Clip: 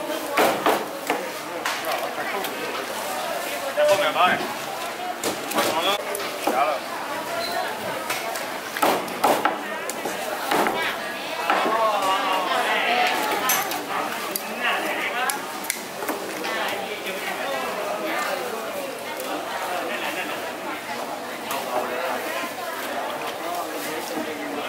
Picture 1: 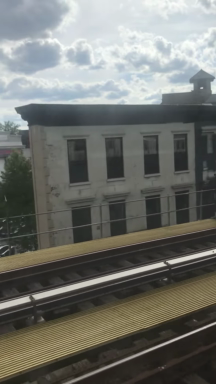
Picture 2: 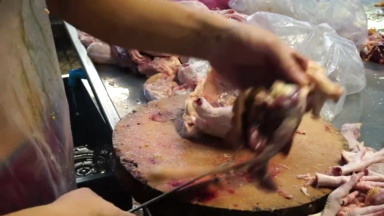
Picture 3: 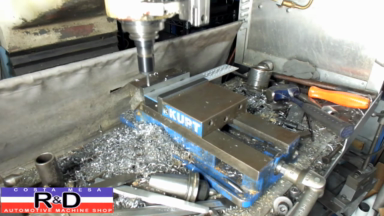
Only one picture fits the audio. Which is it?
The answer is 2